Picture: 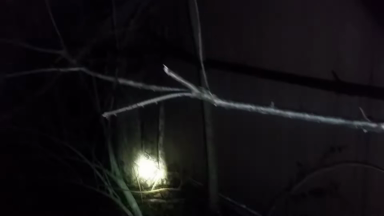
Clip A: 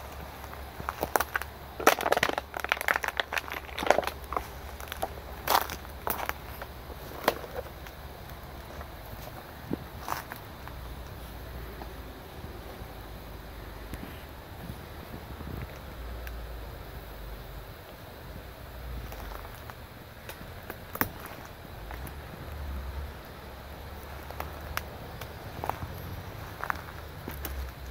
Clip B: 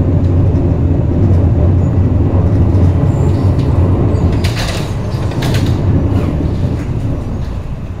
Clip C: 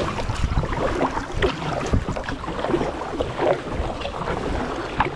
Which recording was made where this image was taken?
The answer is A